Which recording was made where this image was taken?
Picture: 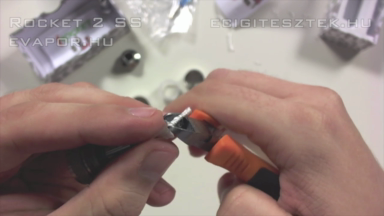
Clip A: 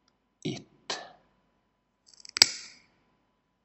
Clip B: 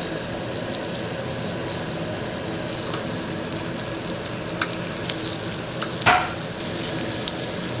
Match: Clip A